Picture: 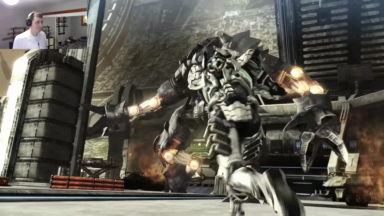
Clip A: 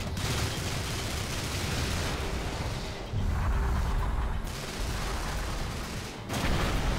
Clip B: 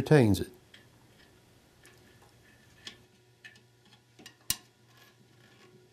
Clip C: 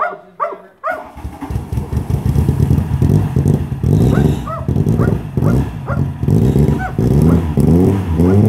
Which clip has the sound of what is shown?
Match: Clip A